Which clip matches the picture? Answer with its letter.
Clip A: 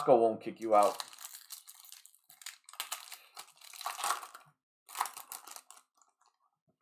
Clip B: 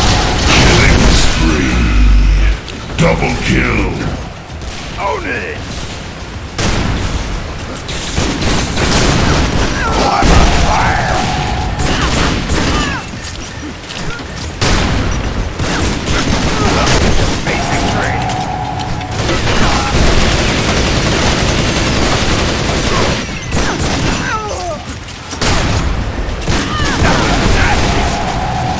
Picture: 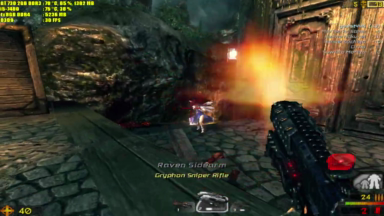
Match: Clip B